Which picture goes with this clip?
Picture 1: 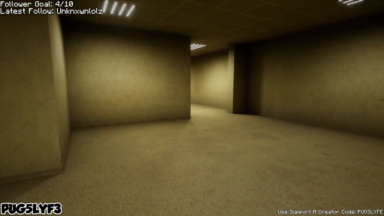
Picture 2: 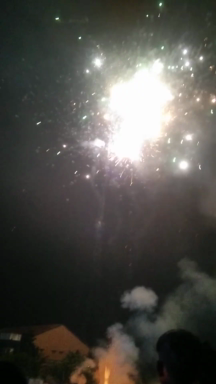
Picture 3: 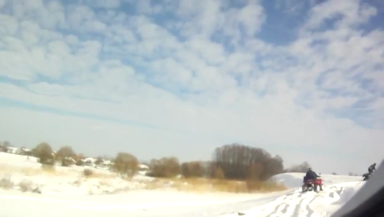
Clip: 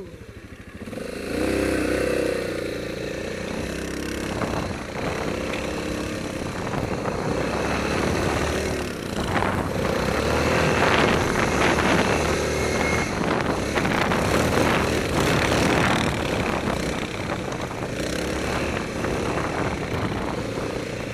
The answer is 3